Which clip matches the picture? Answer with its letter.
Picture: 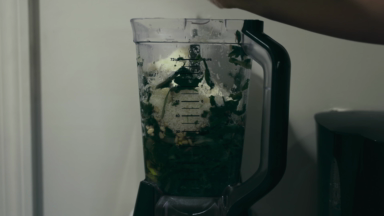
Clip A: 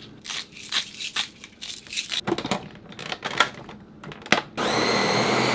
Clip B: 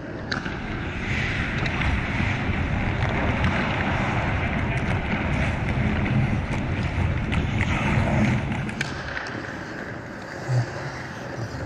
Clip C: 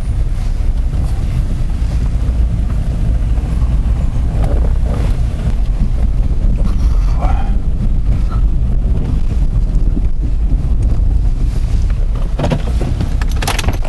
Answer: A